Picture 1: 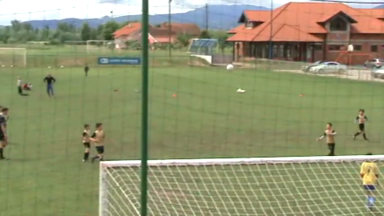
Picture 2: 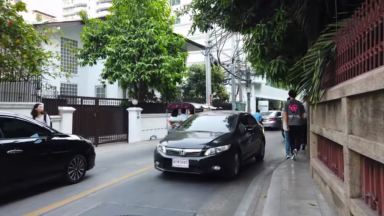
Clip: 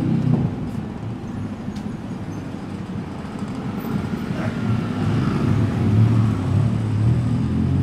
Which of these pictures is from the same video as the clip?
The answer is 2